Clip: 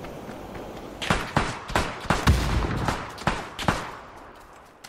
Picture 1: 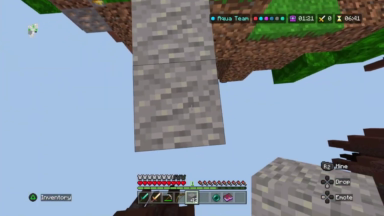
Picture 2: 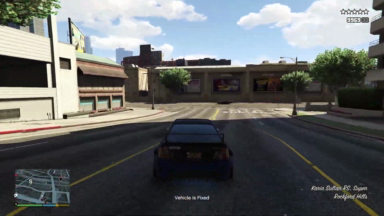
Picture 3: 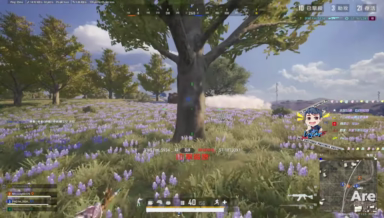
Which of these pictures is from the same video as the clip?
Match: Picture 3